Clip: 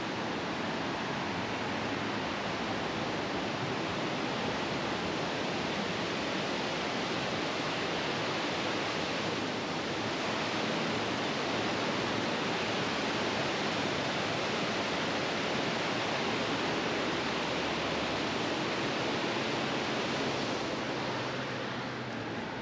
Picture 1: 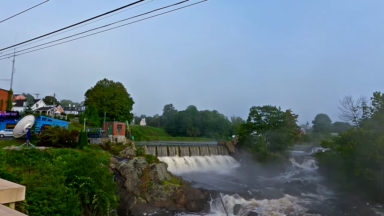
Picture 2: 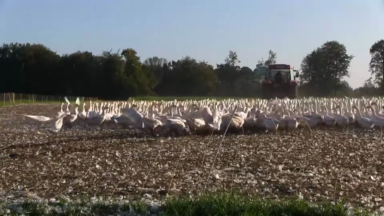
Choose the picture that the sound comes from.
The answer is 1